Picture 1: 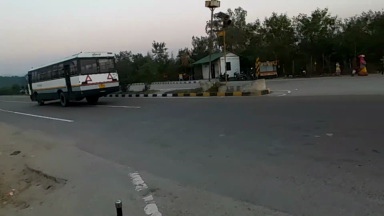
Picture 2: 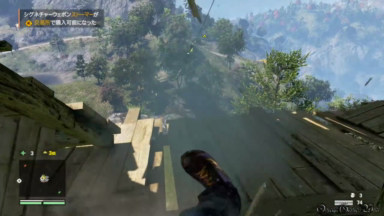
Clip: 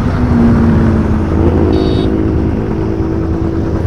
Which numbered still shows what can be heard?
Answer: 1